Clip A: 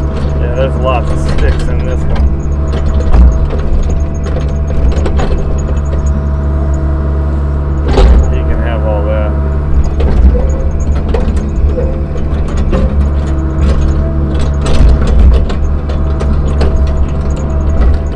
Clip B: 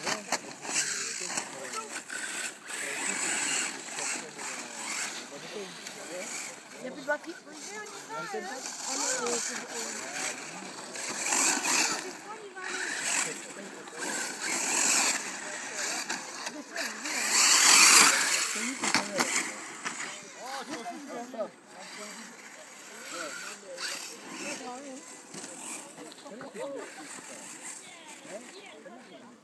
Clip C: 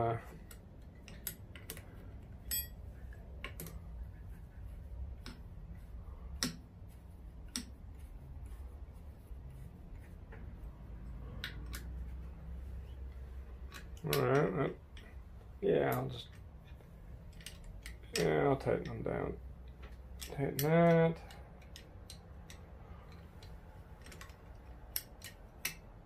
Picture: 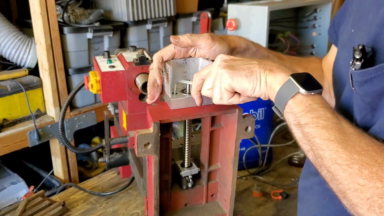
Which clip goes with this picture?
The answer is C